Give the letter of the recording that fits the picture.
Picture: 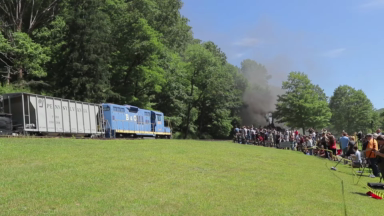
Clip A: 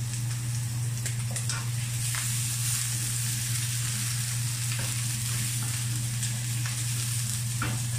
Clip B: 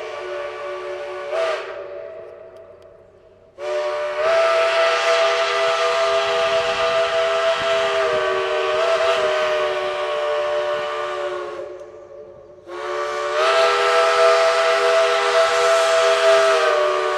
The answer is B